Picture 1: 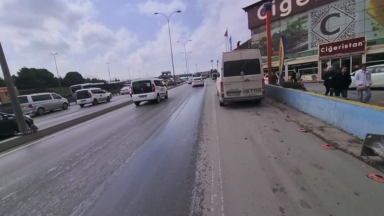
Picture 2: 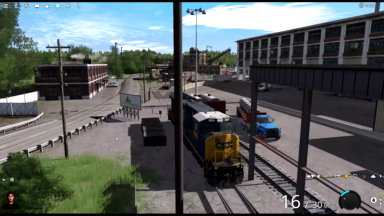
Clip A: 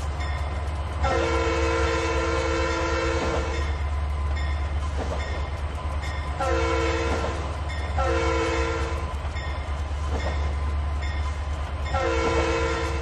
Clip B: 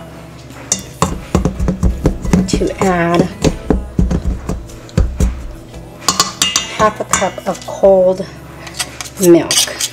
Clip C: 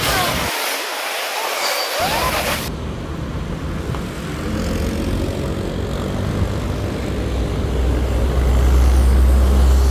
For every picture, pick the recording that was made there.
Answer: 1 C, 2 A